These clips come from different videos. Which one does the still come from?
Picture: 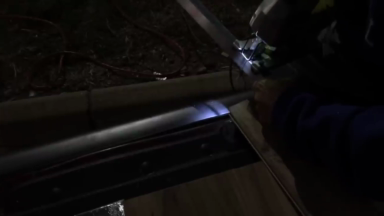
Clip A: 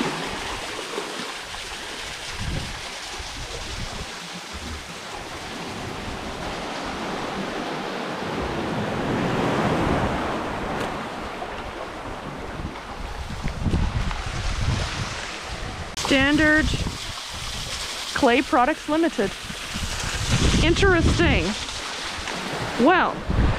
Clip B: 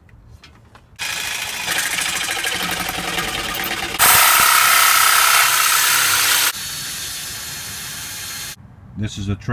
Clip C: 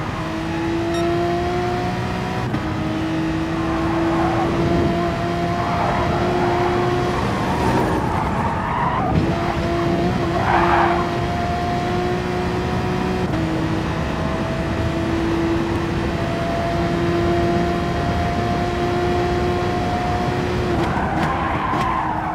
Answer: B